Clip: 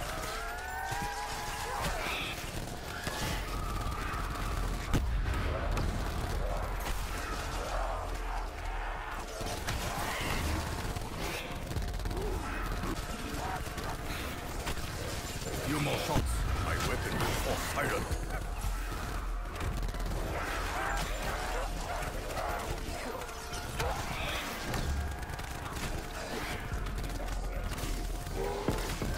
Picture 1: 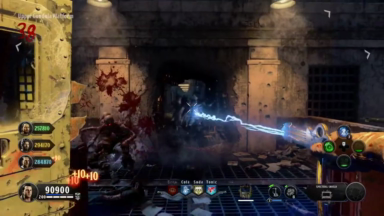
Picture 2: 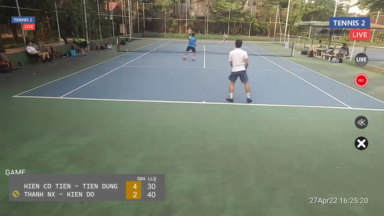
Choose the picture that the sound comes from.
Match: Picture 1